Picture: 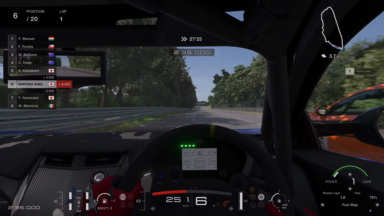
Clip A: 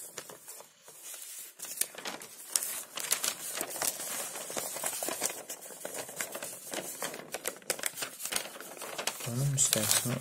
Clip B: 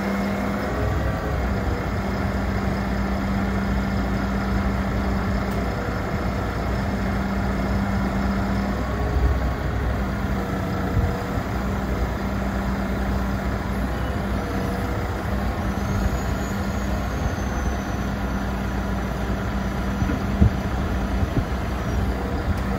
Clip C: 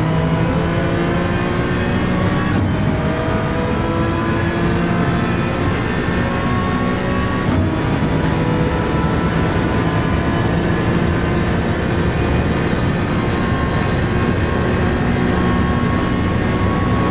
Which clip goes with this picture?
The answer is C